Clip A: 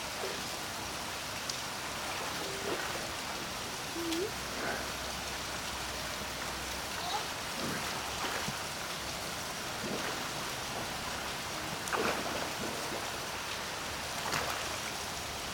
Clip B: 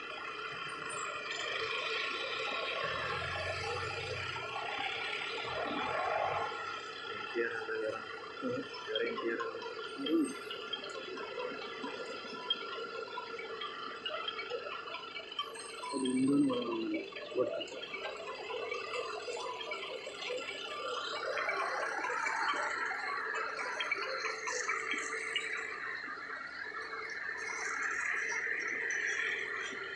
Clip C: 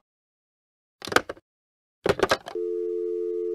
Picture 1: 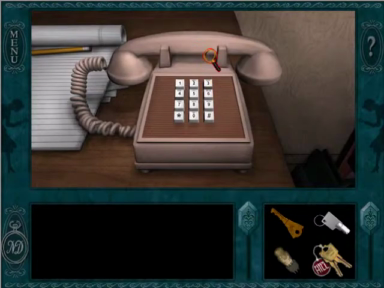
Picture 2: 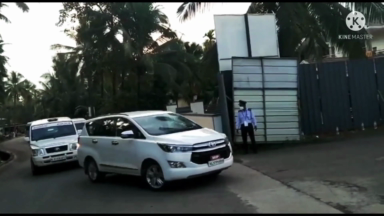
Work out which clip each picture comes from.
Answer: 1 C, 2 B